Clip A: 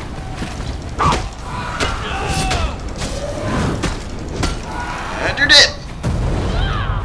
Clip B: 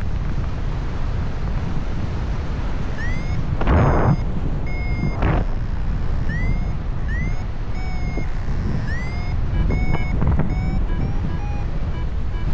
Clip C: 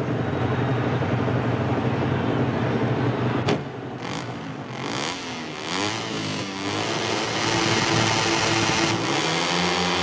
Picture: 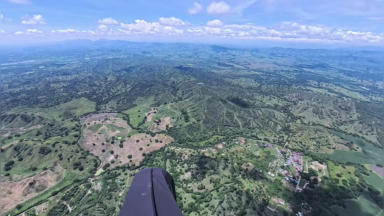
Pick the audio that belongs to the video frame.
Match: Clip B